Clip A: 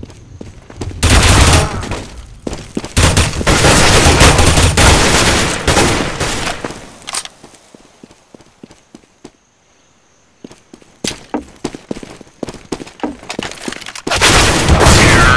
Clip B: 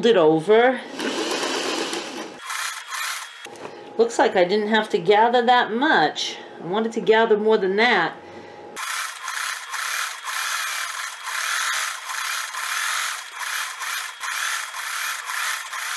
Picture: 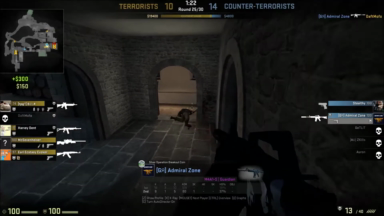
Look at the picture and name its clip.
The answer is A